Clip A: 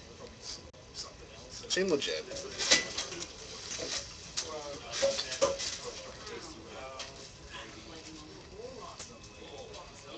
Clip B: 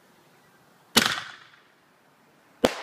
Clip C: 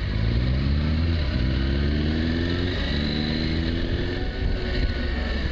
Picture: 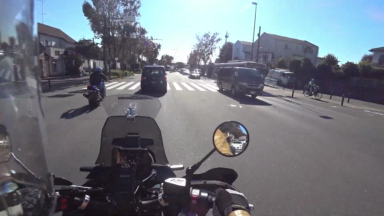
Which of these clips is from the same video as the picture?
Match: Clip C